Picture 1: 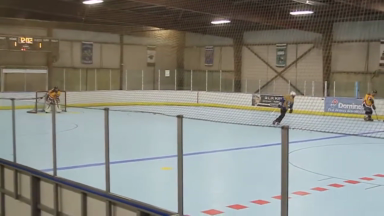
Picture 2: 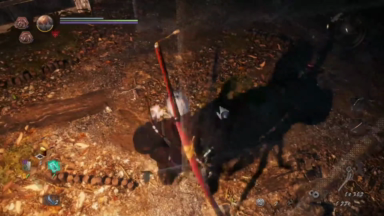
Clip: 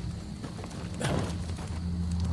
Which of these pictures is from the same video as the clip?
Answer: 2